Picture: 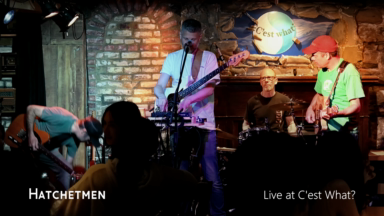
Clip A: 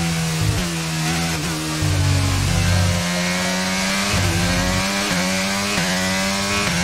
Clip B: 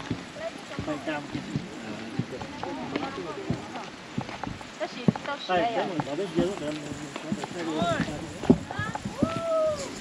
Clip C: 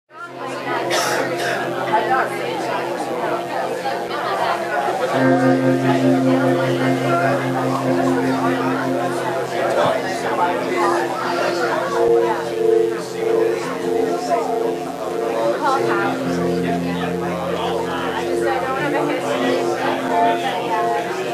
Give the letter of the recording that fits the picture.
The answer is C